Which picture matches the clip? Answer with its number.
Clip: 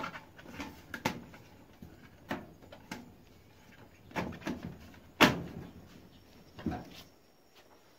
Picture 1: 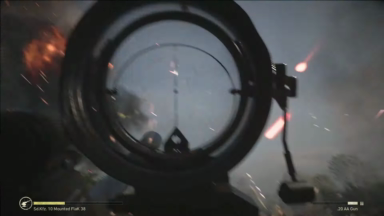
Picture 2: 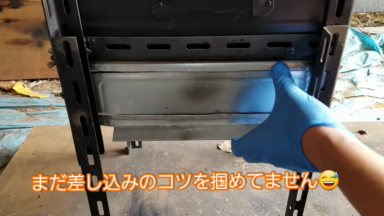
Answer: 2